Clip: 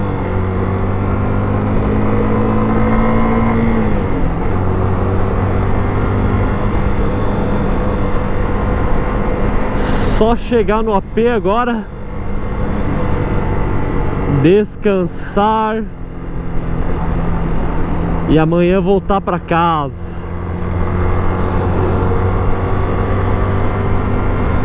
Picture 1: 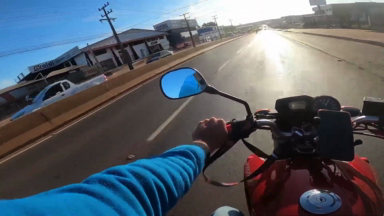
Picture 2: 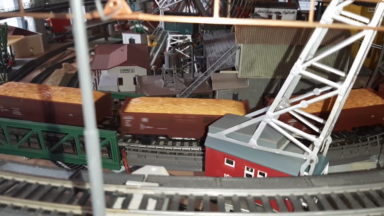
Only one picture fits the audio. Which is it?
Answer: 1